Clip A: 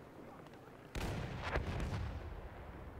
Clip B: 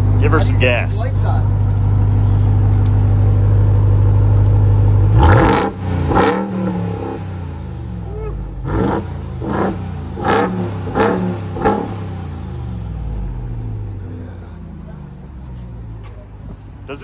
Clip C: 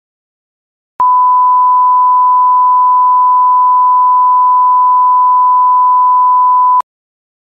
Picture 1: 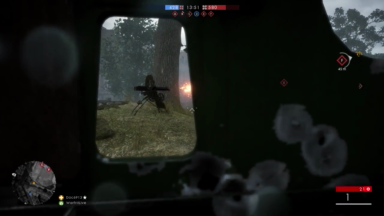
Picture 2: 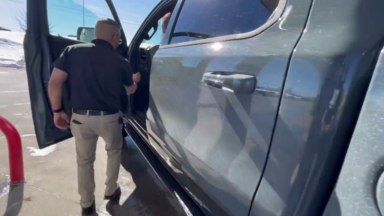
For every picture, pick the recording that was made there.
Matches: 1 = A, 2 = B